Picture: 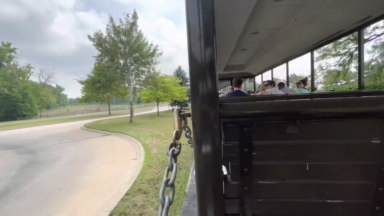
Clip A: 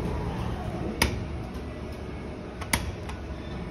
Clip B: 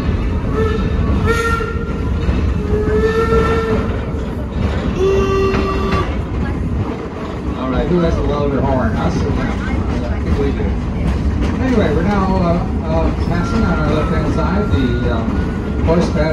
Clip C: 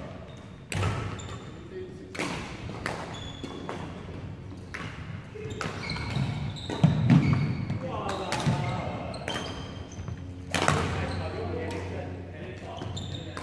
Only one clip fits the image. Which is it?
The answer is B